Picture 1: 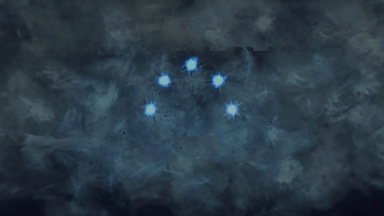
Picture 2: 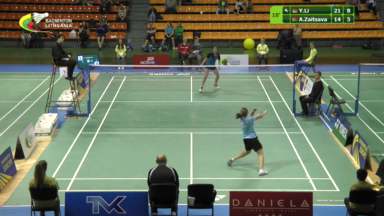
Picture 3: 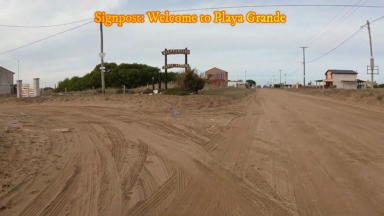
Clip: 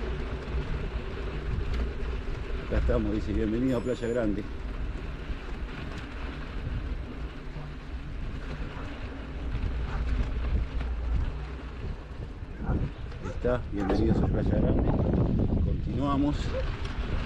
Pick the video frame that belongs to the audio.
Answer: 3